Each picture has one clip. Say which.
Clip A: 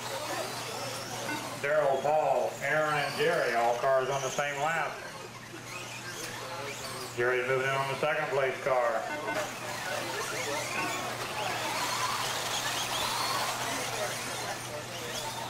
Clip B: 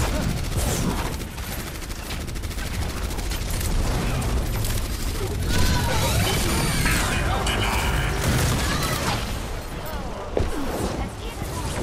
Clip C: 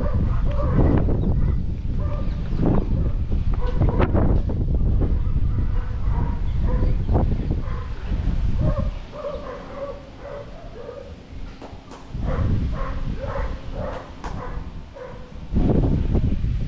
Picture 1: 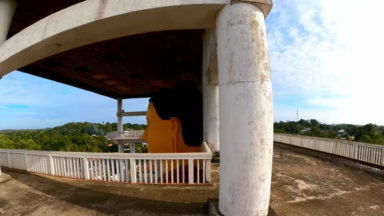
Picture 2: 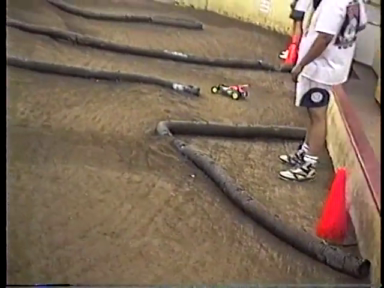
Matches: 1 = C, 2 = A